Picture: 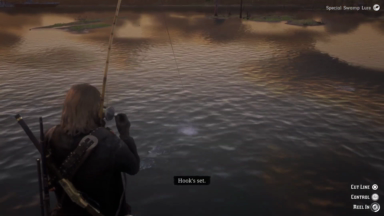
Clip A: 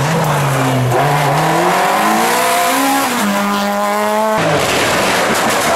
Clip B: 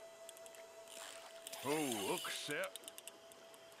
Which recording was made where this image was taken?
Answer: B